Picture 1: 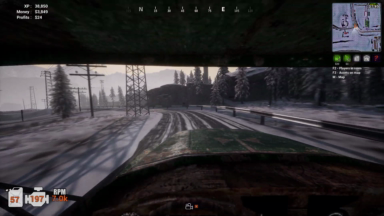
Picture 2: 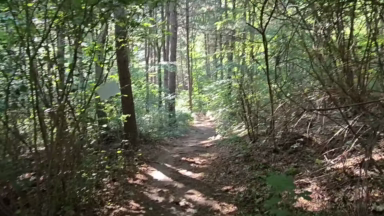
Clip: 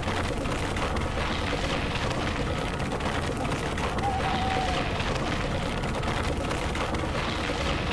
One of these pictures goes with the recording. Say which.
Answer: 1